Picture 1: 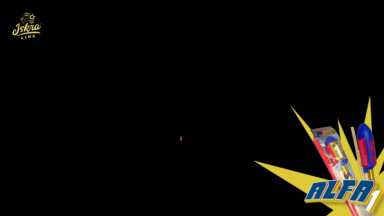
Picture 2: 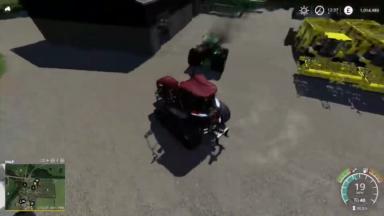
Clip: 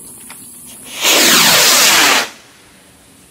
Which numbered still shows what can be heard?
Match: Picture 1